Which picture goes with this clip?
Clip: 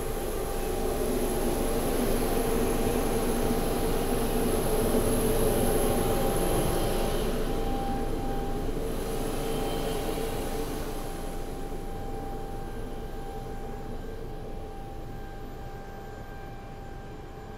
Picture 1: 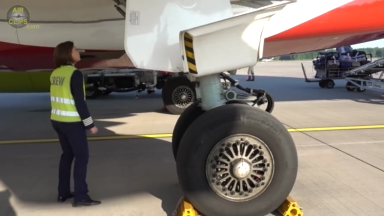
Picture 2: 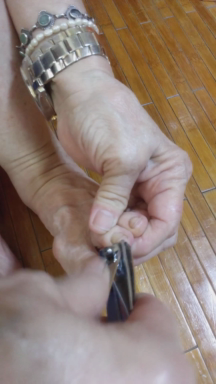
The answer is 1